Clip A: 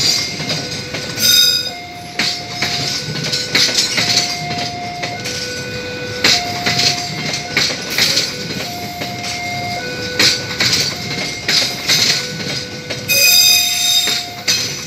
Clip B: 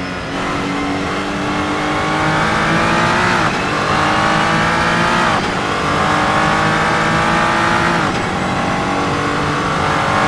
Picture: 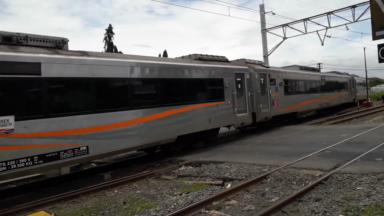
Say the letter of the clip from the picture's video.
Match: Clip A